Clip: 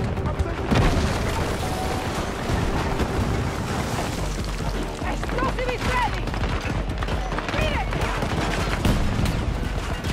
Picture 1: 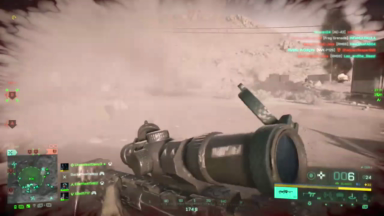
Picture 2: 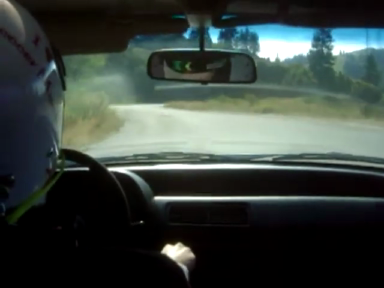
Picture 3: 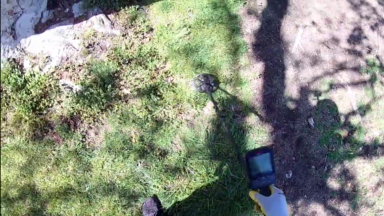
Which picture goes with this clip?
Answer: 1